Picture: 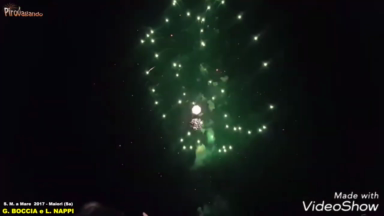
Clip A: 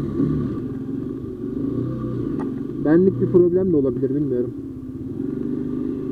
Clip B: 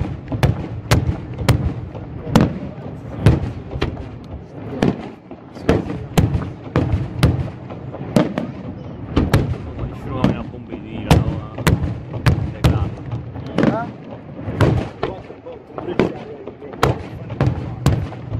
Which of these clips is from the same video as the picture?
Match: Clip B